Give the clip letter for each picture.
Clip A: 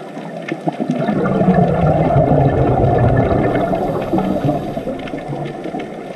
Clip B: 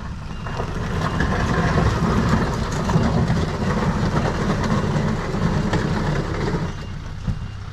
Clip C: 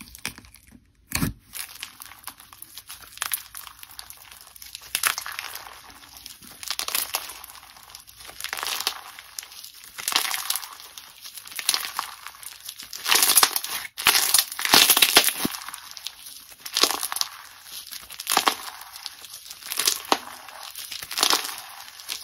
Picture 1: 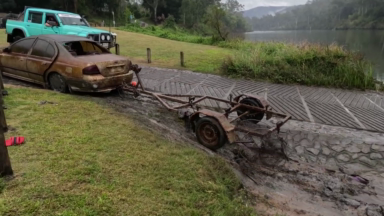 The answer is B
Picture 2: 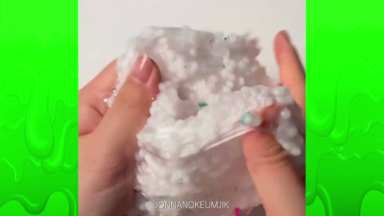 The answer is C